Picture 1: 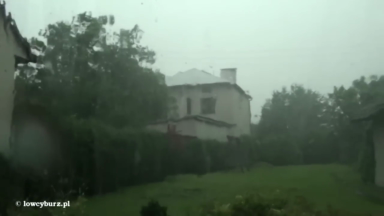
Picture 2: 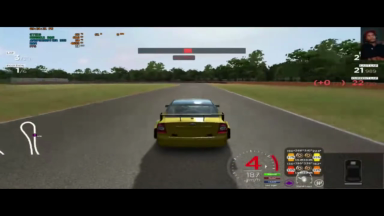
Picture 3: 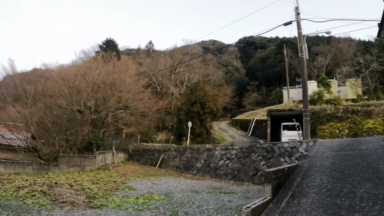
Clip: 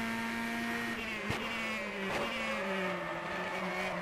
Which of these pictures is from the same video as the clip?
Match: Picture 2